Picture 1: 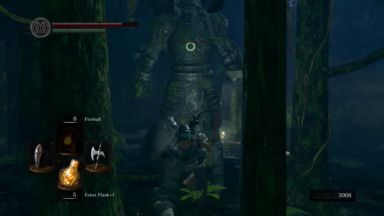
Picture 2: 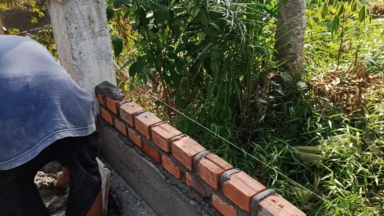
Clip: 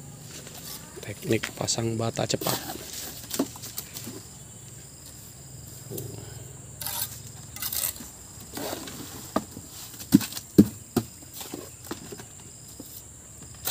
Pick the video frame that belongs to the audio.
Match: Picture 2